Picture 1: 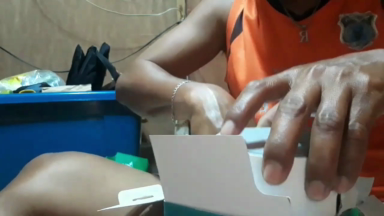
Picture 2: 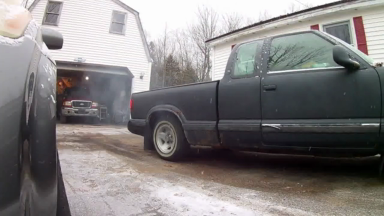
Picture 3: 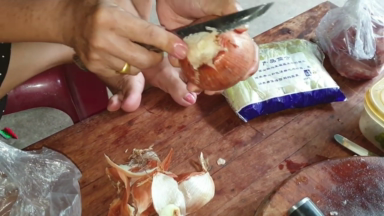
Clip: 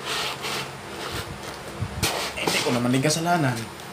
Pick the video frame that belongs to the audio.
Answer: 1